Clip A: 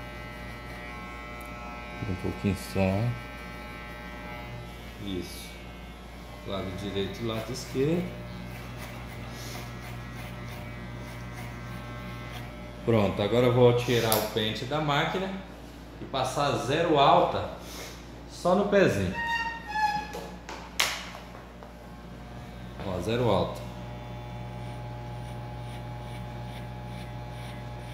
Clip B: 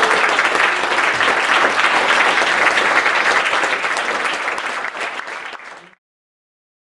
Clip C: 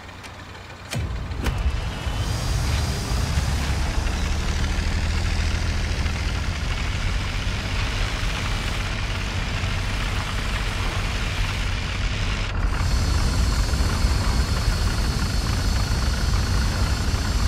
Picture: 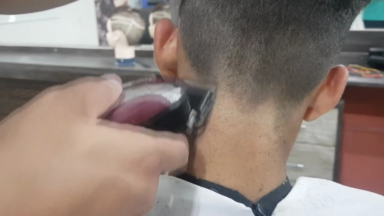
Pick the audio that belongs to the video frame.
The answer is A